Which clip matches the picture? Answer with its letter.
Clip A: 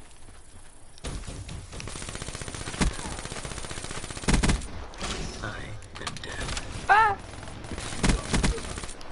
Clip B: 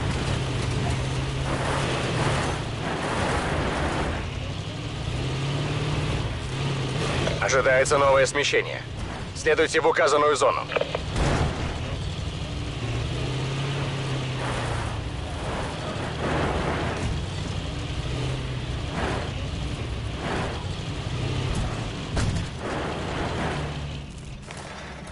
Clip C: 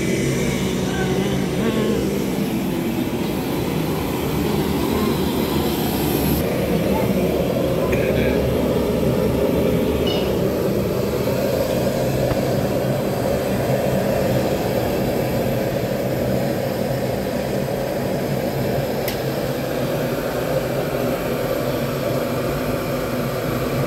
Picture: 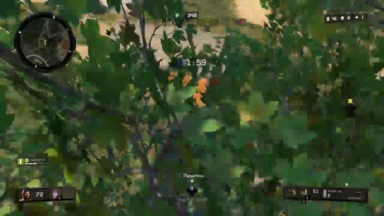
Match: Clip B